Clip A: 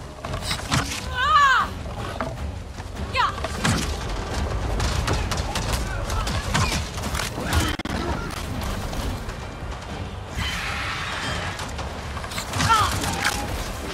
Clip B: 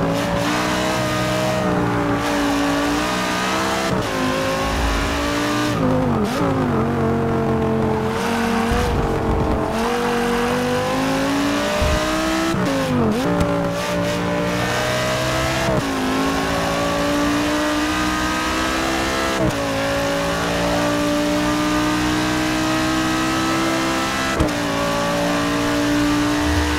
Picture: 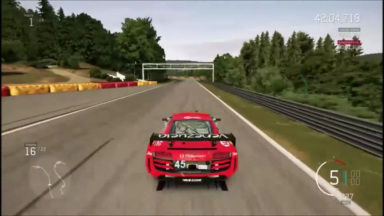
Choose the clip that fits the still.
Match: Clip B